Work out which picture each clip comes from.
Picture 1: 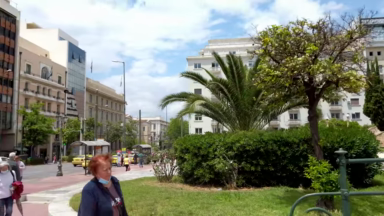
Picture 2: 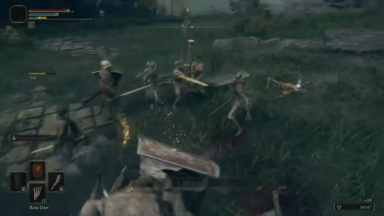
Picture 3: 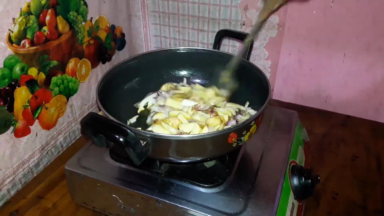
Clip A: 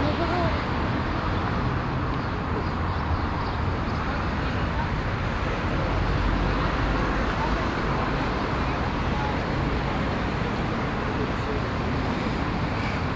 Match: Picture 1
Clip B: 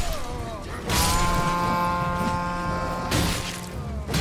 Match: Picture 2